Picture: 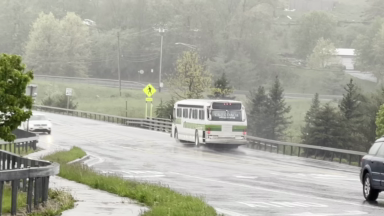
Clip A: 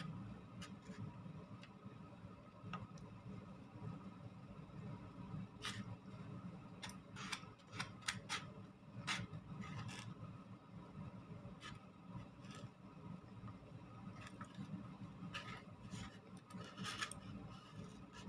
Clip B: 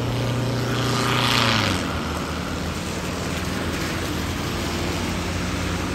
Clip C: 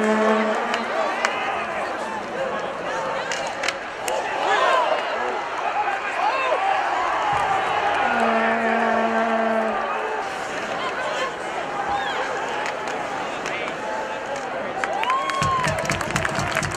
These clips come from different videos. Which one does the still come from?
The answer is B